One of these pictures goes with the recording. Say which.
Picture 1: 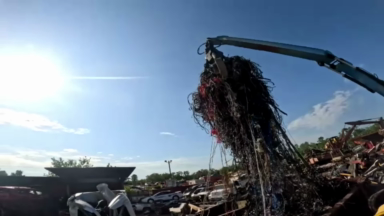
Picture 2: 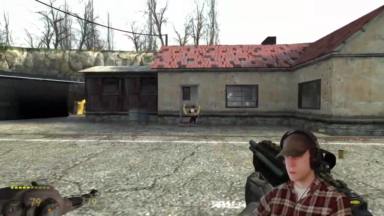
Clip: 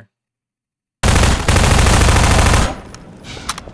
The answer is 2